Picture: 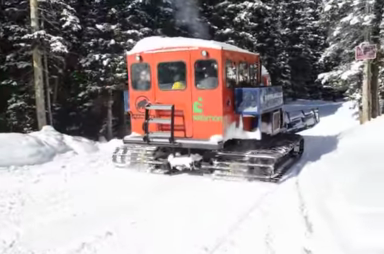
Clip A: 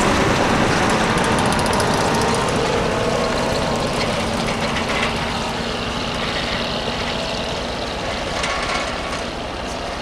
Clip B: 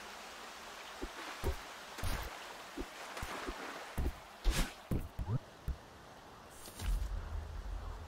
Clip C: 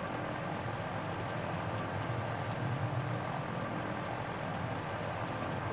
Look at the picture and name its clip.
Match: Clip A